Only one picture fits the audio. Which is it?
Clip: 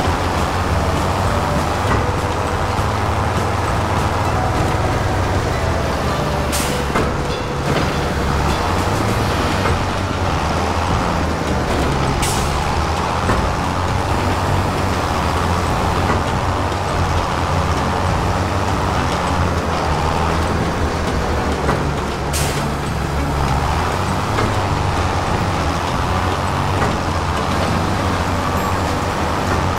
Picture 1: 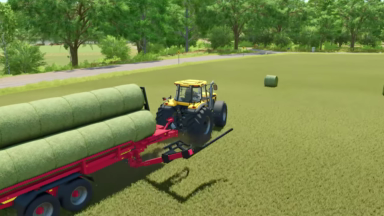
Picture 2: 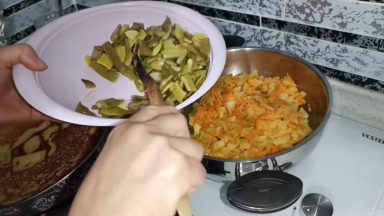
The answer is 1